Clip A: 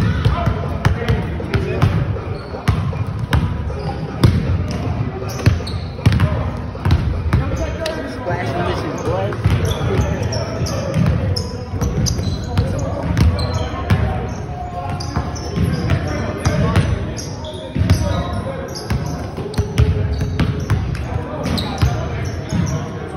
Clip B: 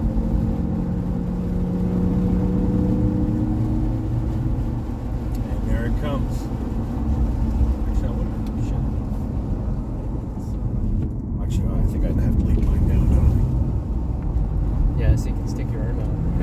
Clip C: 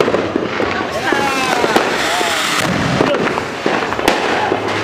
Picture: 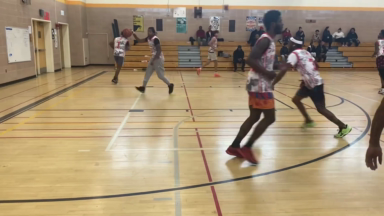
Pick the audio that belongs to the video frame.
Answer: A